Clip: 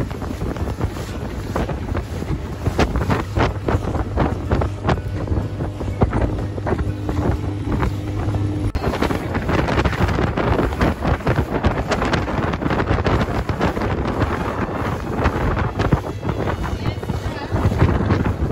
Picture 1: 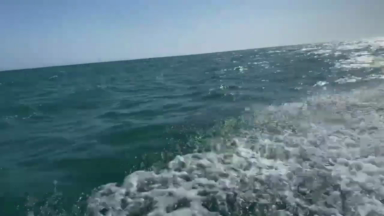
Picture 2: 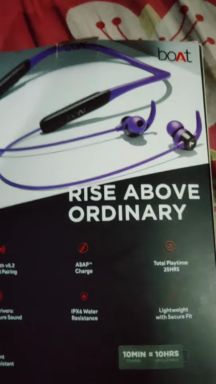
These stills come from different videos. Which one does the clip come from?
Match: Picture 1